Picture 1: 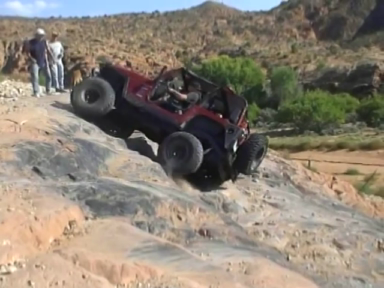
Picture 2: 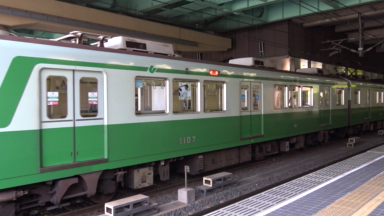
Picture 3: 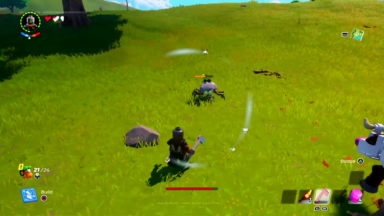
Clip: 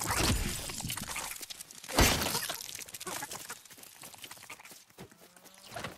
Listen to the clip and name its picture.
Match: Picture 3